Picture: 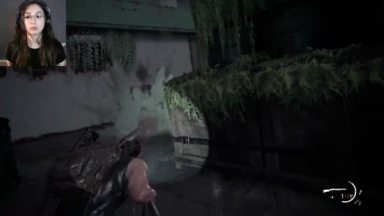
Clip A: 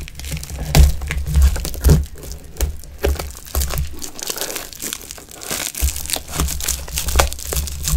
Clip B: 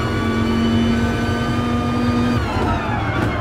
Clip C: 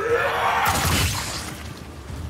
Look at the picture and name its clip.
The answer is C